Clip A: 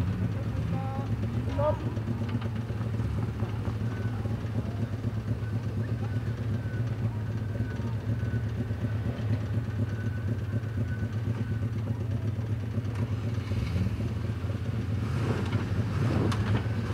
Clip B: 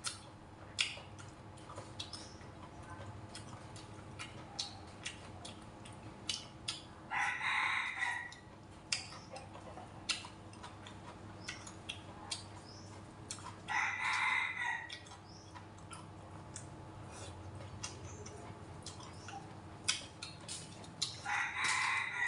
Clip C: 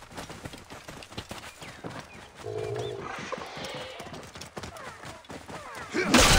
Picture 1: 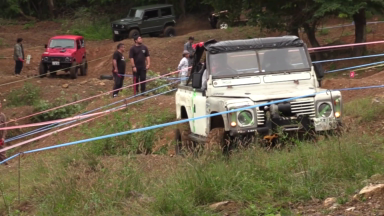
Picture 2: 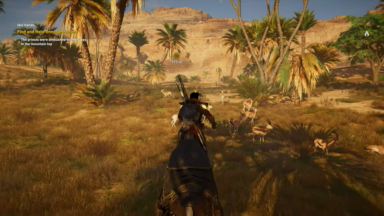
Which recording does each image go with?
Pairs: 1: A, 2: C